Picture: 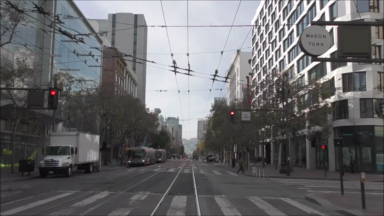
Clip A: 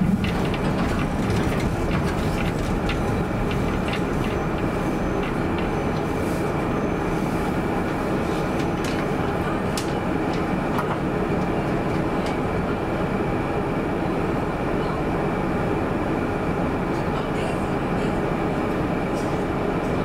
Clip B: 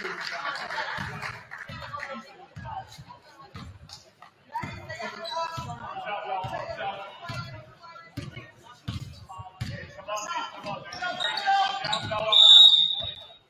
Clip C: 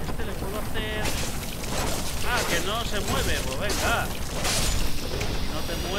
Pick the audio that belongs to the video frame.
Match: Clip A